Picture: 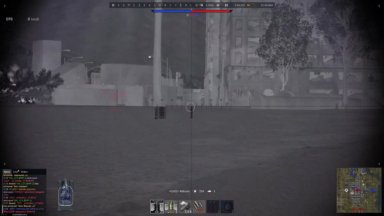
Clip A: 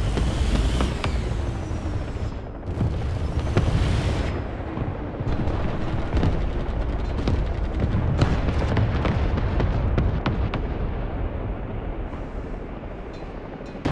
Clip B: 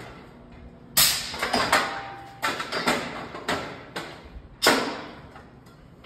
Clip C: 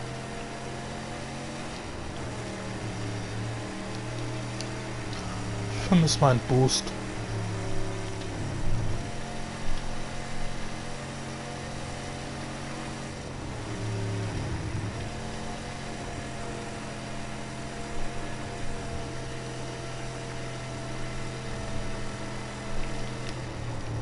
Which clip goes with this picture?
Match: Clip A